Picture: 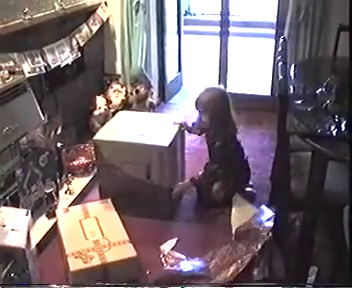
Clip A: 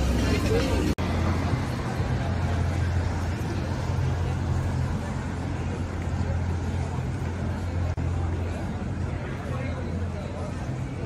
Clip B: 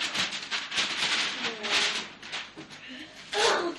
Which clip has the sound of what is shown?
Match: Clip B